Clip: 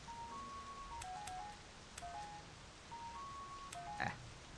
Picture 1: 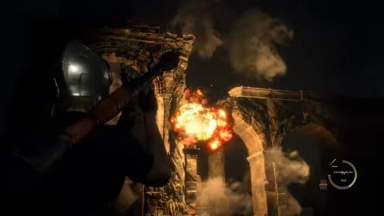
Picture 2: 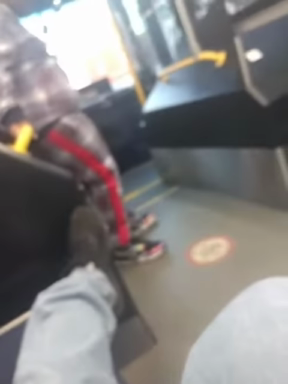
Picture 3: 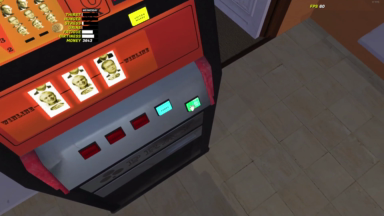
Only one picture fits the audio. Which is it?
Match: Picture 3